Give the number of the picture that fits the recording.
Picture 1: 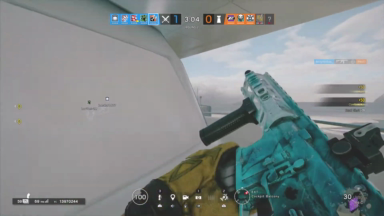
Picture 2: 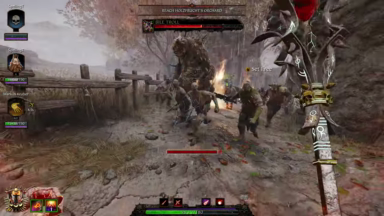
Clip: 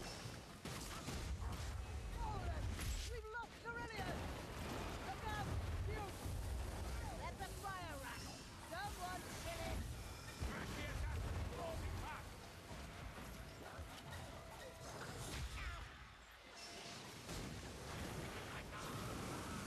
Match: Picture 2